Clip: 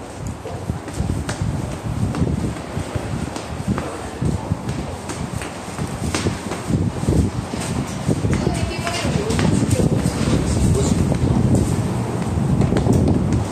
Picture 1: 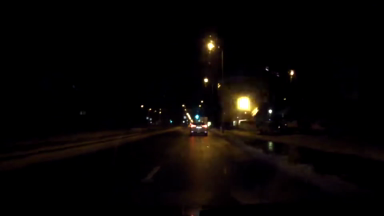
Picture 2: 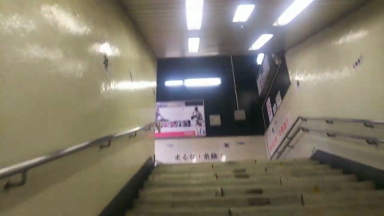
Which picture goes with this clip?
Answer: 2